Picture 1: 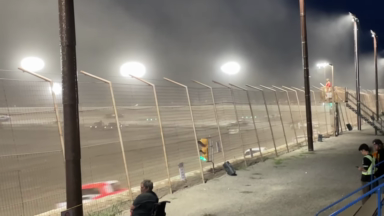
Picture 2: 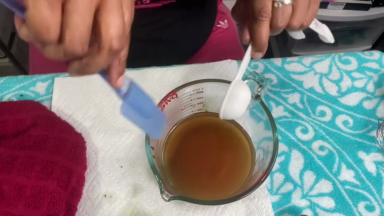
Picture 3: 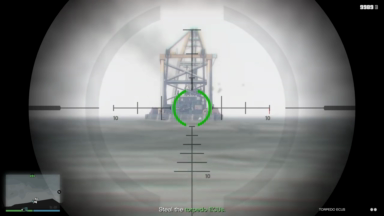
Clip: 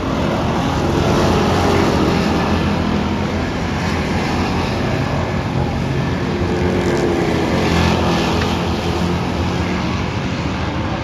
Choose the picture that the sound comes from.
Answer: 1